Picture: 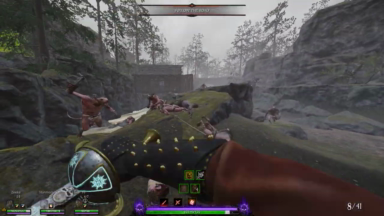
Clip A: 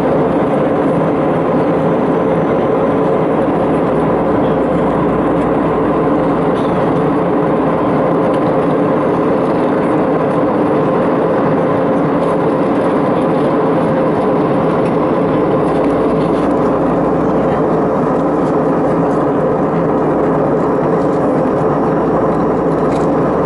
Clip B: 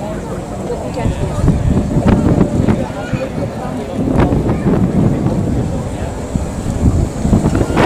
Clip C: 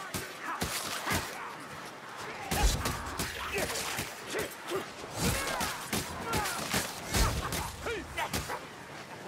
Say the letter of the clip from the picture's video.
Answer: C